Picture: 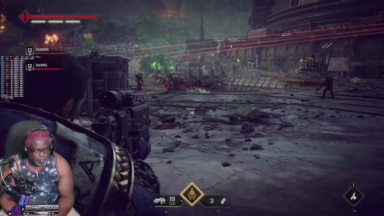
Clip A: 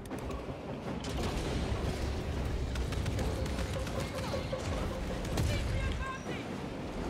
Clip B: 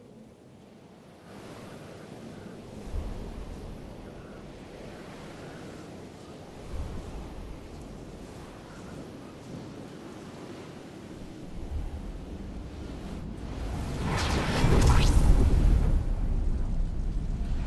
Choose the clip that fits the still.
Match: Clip A